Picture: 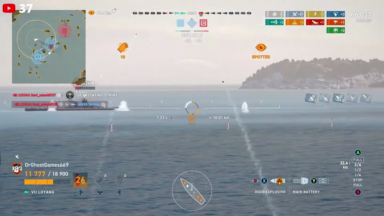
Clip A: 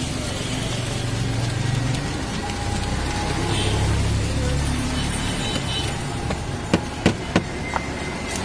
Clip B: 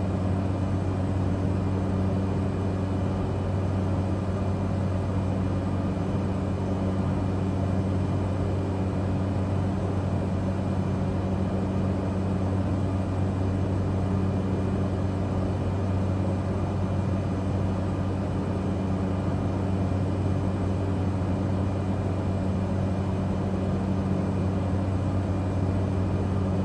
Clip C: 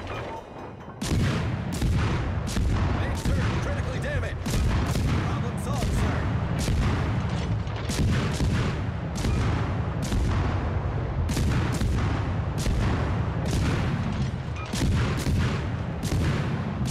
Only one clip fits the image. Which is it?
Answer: C